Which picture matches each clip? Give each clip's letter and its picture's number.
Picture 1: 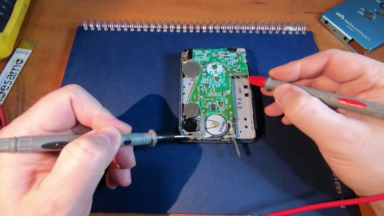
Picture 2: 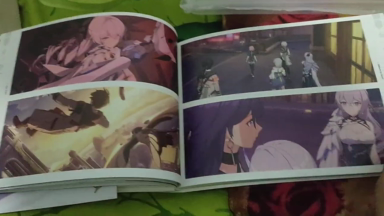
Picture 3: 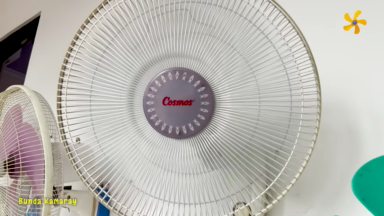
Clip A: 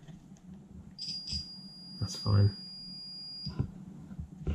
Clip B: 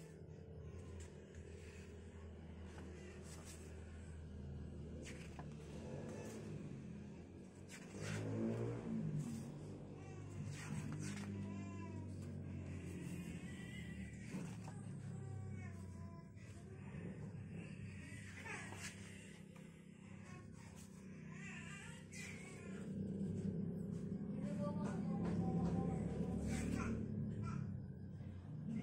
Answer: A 1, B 2